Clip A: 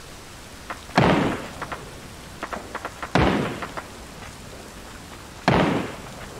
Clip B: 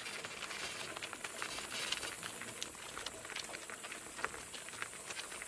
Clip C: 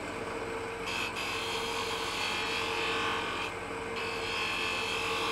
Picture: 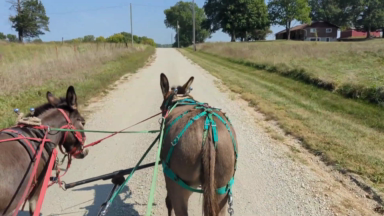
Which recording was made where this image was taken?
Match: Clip B